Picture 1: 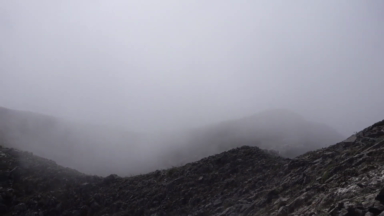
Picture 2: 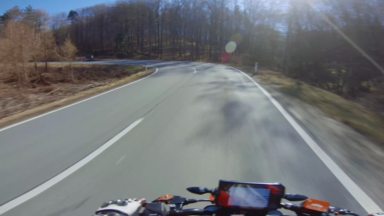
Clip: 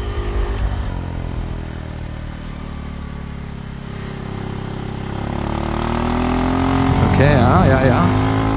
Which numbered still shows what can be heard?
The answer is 2